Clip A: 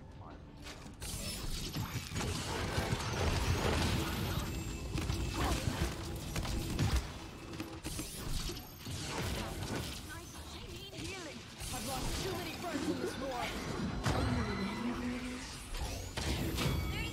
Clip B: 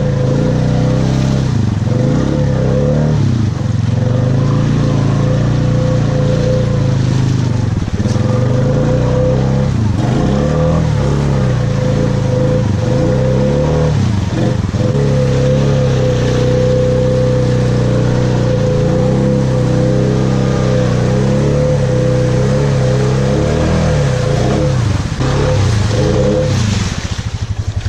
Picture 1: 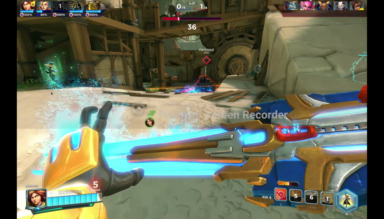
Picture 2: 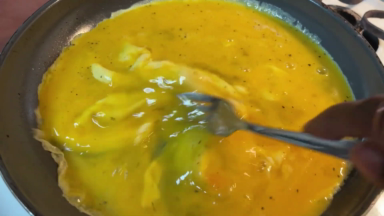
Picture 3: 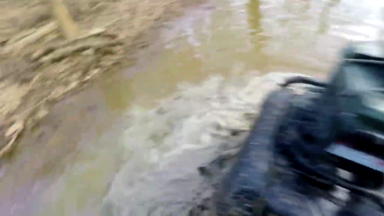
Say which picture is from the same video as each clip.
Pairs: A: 1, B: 3